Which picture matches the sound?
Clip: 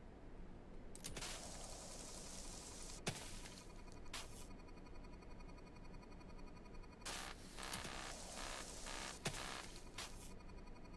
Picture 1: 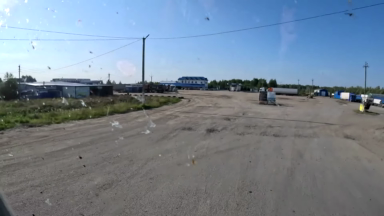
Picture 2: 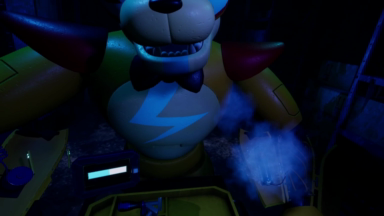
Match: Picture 2